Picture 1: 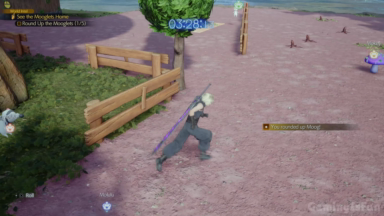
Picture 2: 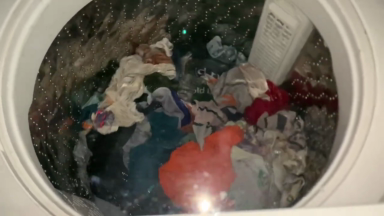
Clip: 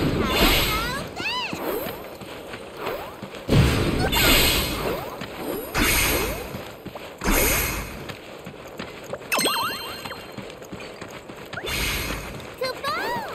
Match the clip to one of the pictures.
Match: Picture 1